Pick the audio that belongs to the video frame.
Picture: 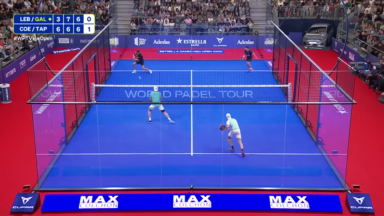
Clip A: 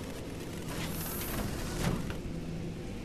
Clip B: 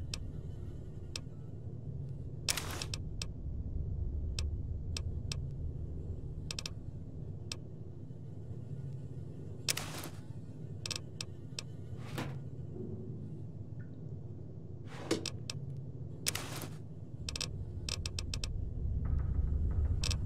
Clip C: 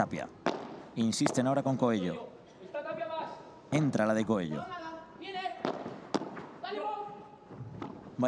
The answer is C